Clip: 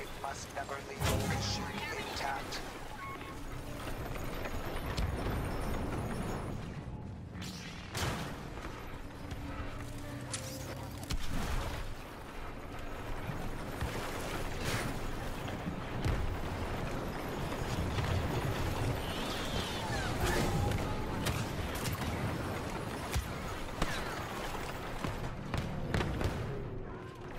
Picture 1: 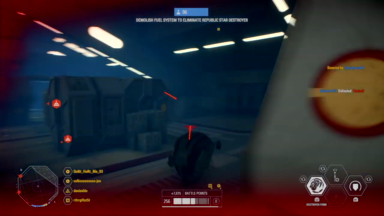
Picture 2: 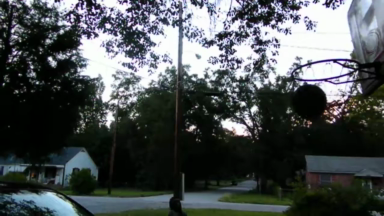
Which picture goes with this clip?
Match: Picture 1